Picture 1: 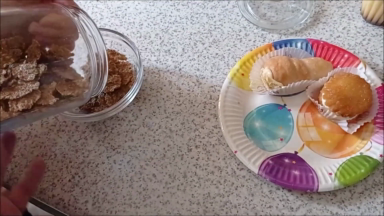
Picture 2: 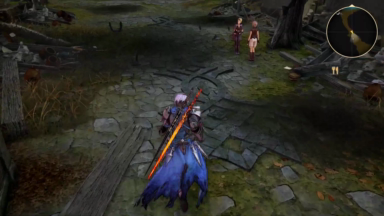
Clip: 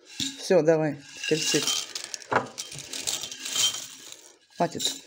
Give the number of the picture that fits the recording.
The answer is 1